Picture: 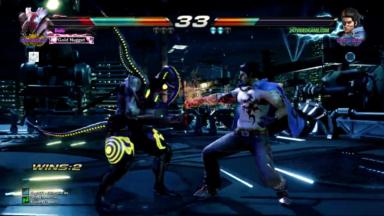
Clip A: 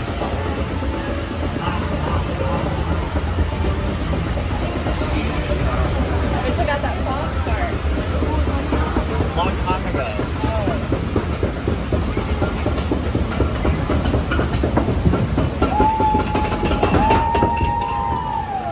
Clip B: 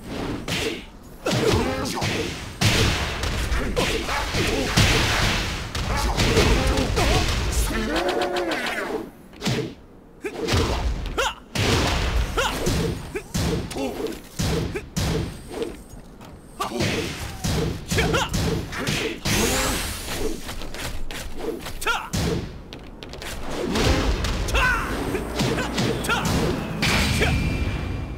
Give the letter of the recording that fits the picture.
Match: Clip B